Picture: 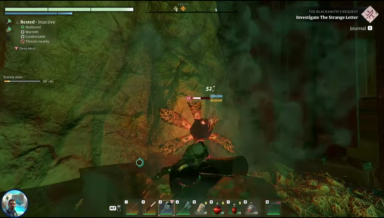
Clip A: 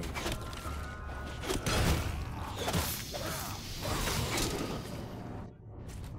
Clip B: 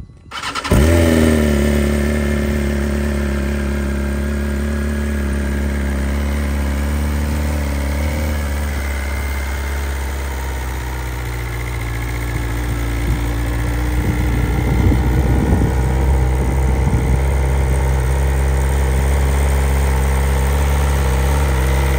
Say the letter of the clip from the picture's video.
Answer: A